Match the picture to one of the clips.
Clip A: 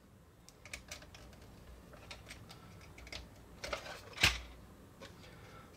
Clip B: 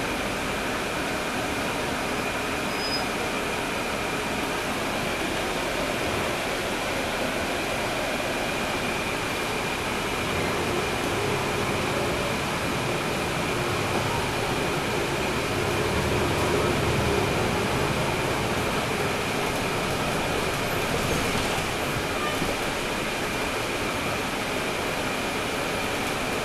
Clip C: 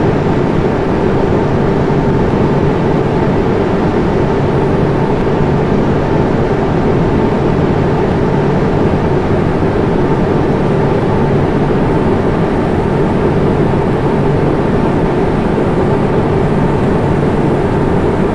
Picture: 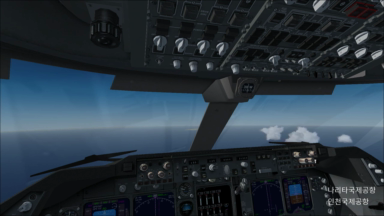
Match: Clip C